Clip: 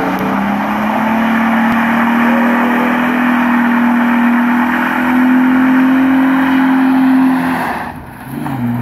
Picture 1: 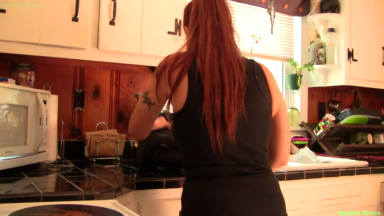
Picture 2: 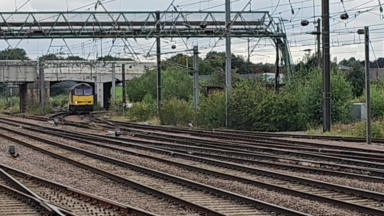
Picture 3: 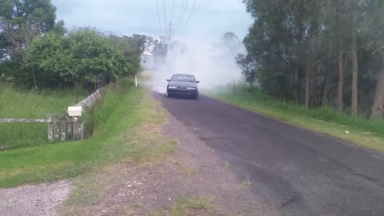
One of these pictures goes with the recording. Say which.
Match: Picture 3